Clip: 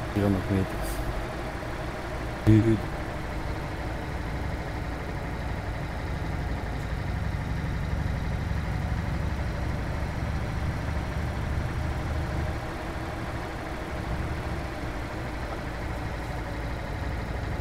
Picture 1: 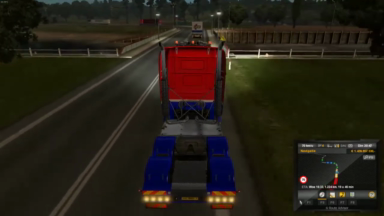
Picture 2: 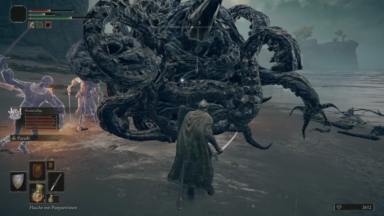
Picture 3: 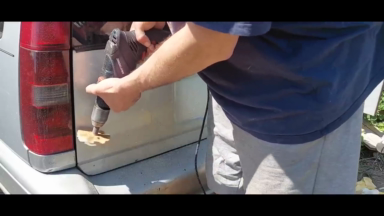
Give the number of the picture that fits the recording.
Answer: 1